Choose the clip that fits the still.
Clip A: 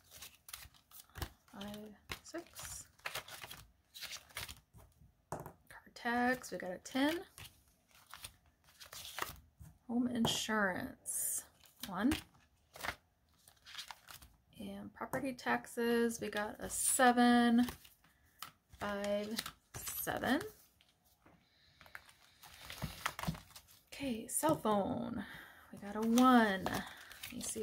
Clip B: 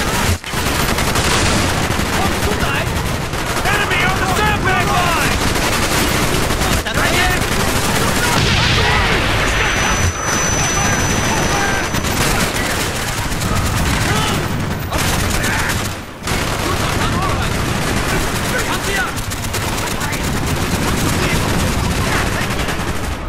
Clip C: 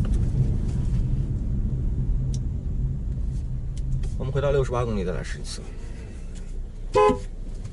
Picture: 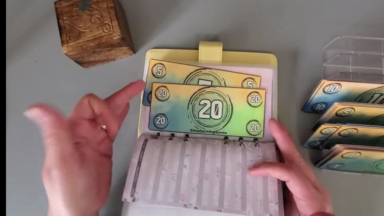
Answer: A